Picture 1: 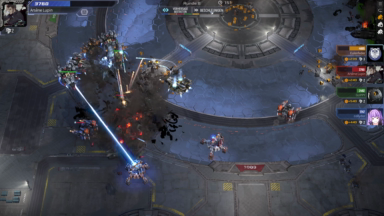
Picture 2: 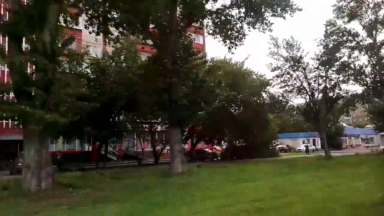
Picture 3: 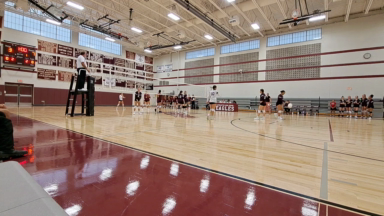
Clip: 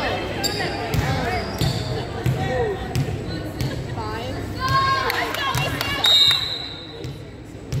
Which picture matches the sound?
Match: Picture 3